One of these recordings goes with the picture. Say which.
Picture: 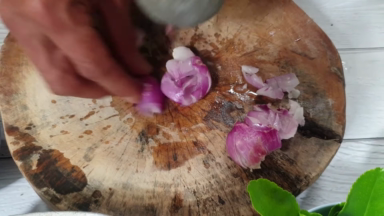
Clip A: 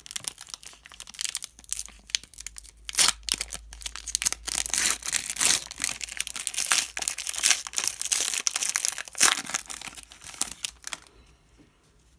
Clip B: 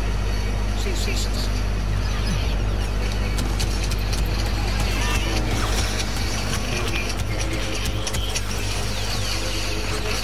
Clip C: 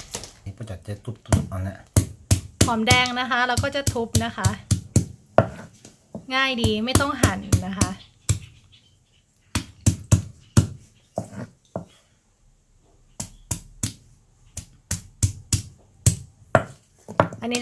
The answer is C